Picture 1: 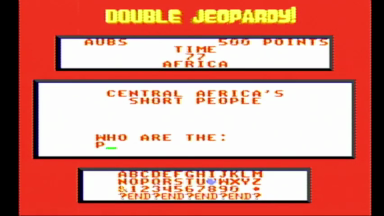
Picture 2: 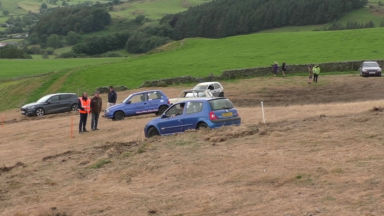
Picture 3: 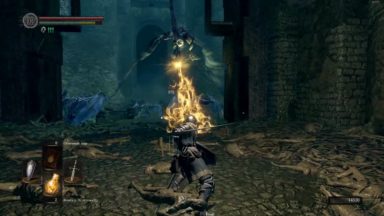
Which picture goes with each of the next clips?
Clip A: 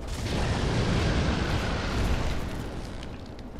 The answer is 3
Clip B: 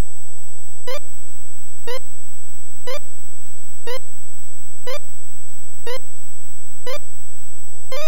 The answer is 1